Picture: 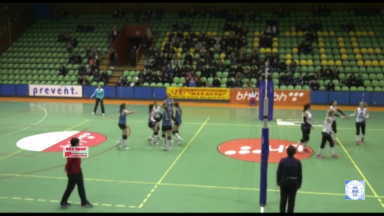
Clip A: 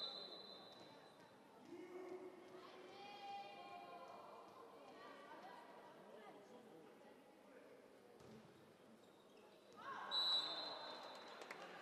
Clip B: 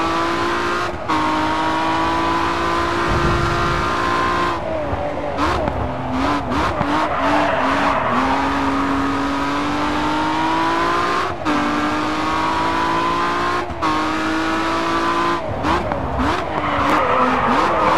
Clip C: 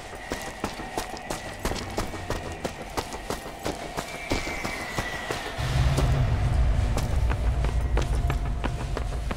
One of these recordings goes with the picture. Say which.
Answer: A